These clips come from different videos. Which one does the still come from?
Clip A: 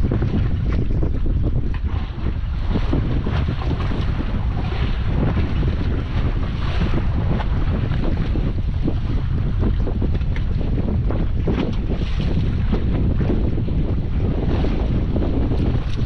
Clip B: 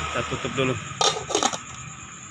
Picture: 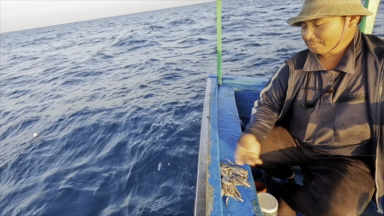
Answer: A